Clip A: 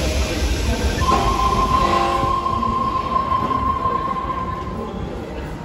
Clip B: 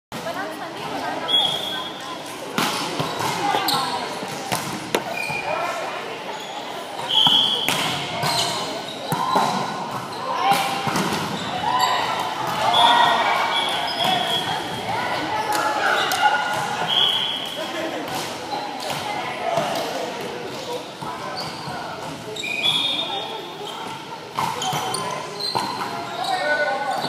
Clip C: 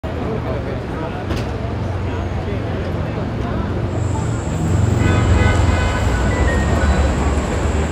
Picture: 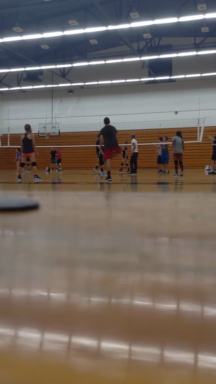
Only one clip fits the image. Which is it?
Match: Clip B